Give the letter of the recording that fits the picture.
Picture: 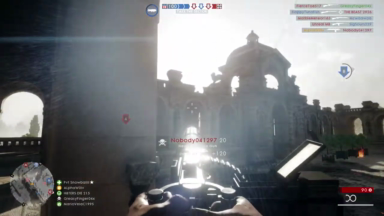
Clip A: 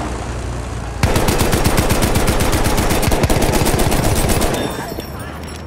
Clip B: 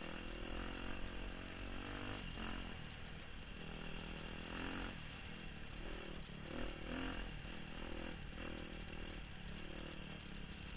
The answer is A